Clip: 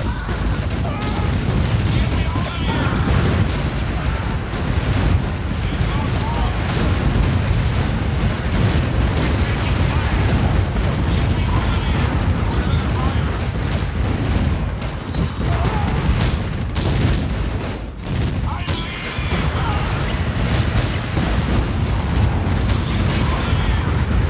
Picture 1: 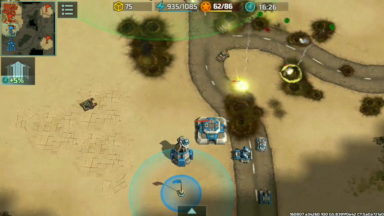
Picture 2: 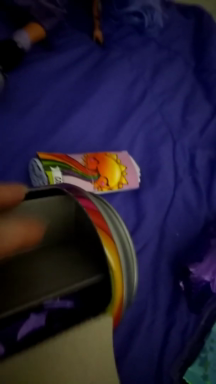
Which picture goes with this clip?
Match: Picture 1